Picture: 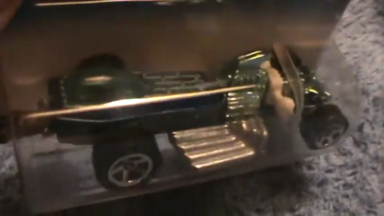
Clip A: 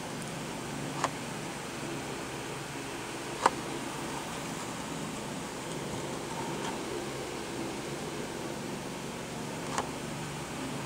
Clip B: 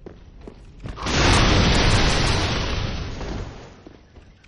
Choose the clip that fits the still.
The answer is A